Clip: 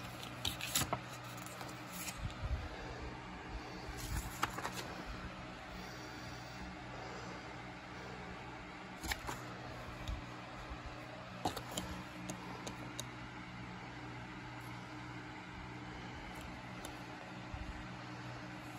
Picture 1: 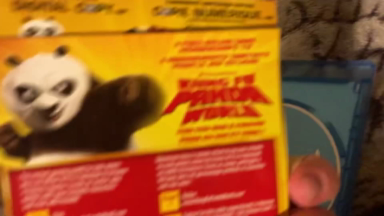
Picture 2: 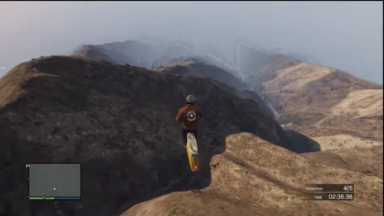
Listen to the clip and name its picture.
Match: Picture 1